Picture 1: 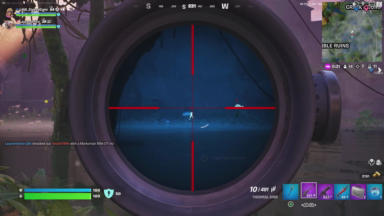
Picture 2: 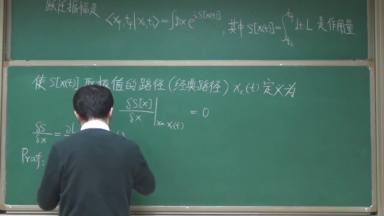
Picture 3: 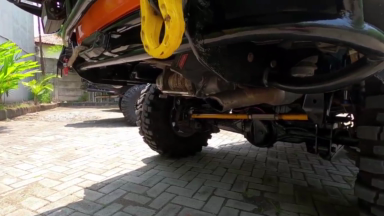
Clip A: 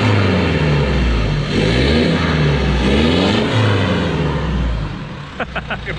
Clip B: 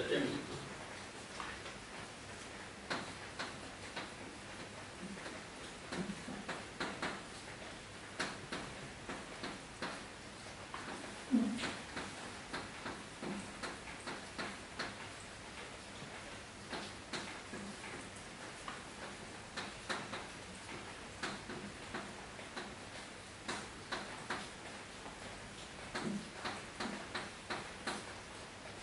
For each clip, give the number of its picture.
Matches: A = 3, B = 2